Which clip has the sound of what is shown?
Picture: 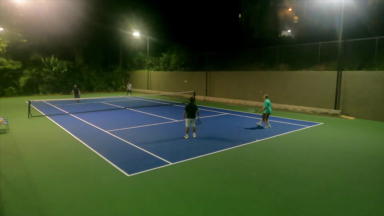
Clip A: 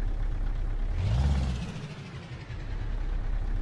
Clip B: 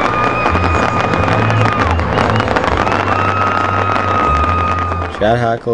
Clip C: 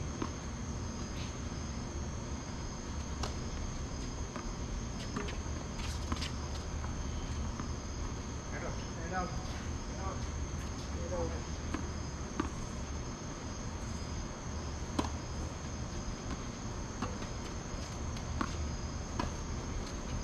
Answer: C